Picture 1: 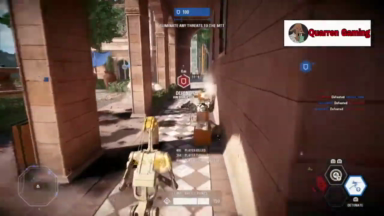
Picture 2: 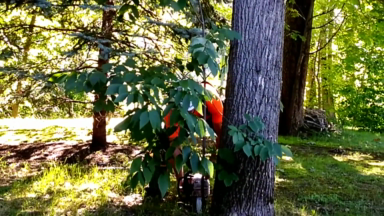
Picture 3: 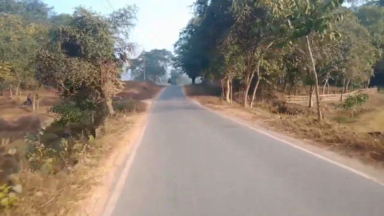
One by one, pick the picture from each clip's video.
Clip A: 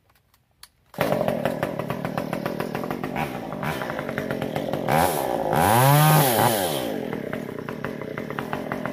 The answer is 2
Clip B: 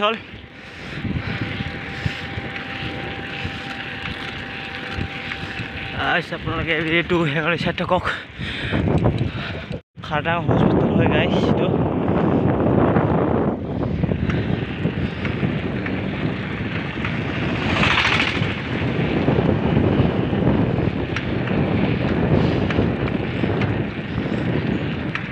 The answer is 3